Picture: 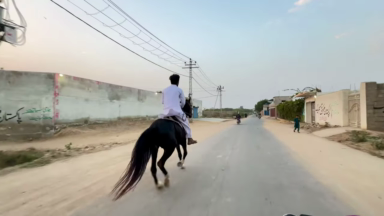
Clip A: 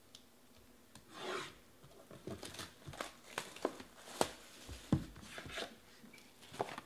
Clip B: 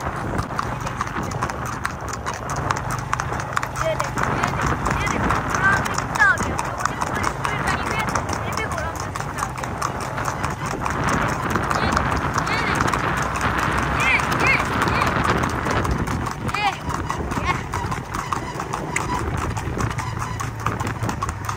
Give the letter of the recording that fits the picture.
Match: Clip B